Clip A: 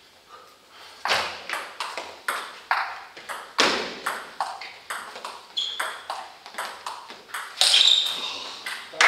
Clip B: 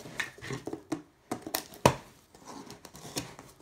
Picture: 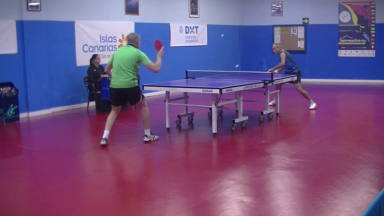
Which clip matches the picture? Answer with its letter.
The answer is A